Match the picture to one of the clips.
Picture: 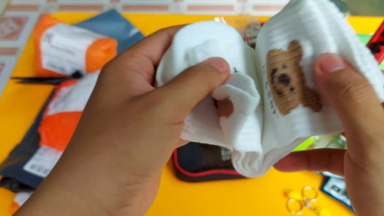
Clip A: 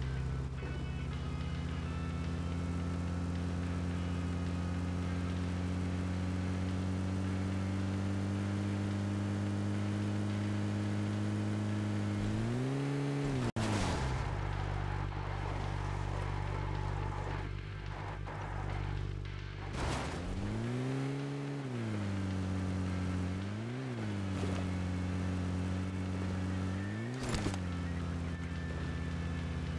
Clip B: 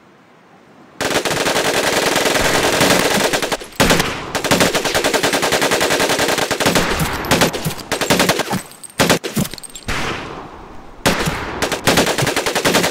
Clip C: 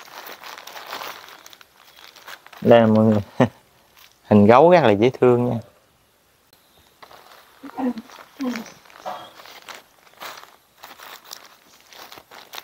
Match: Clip C